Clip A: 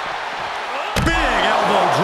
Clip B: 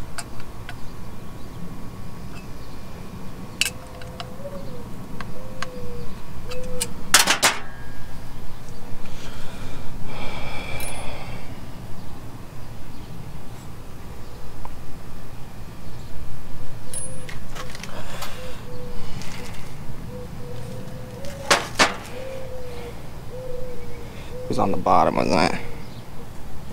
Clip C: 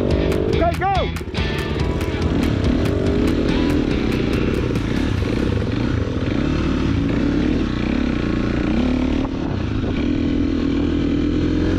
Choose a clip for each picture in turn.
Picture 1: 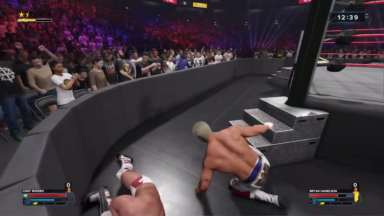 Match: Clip A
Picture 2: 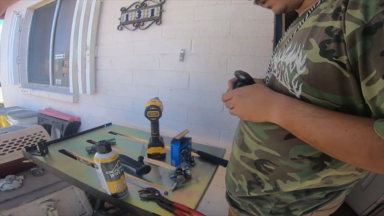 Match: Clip B